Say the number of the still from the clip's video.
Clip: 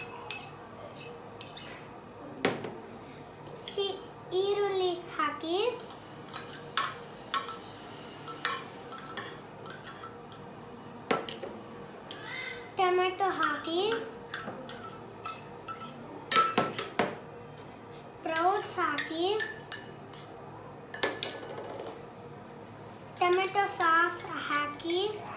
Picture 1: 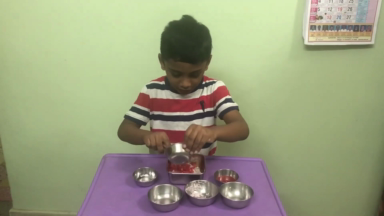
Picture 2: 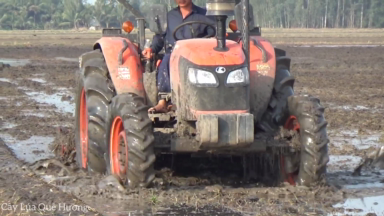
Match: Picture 1